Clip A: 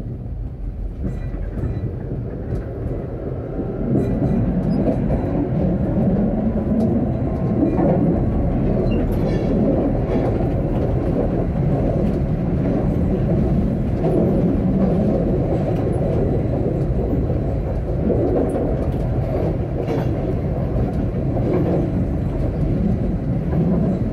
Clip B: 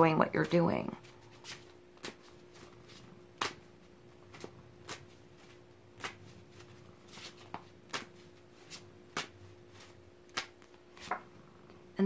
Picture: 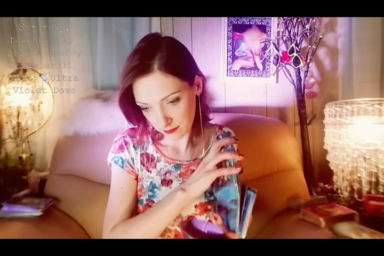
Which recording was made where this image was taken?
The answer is B